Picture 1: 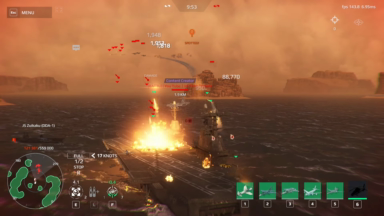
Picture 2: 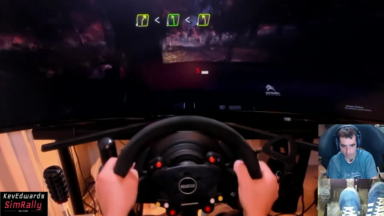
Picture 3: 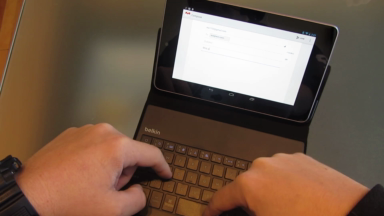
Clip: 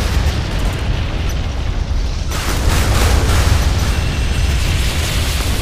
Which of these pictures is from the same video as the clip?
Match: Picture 1